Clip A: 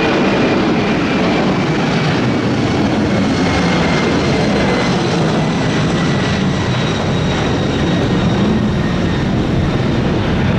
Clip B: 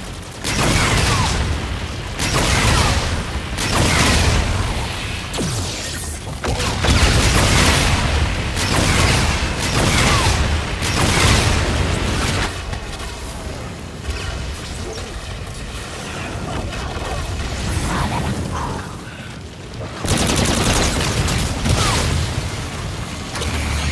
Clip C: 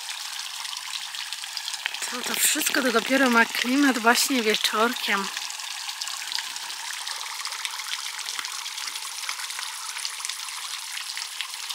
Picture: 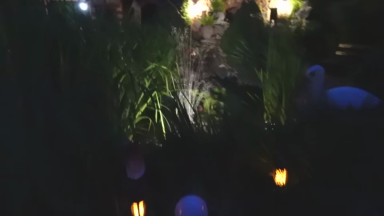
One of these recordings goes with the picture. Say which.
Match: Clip C